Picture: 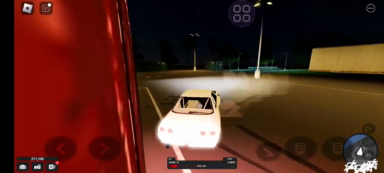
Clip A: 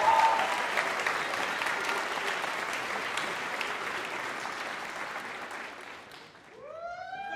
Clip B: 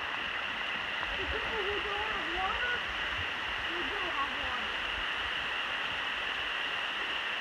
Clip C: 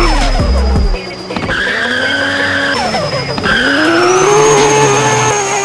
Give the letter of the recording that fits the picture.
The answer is C